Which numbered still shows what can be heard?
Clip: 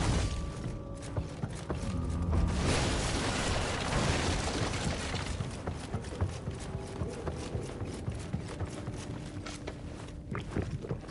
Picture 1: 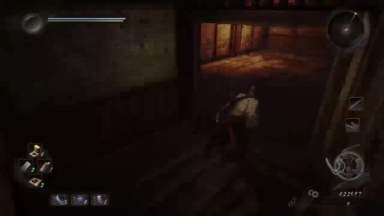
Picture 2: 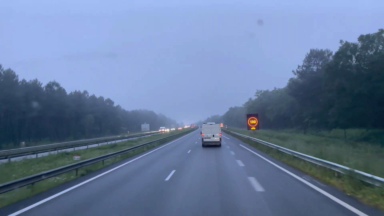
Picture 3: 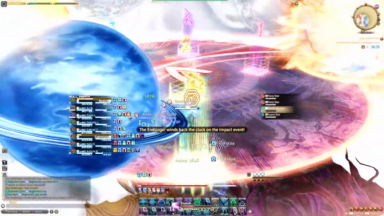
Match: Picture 1